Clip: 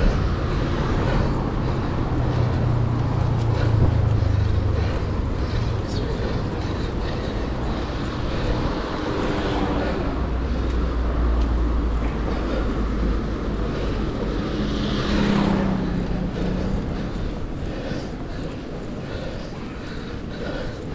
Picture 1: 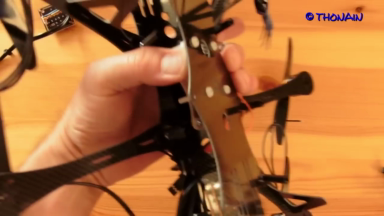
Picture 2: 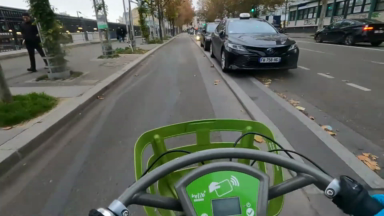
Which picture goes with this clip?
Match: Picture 2